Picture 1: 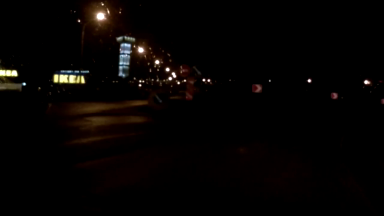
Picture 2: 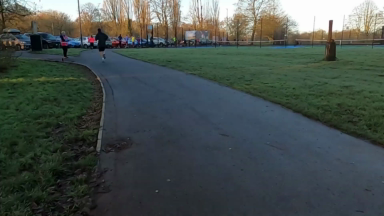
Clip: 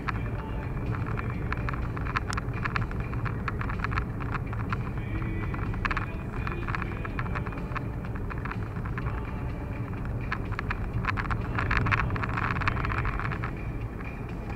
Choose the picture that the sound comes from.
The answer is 1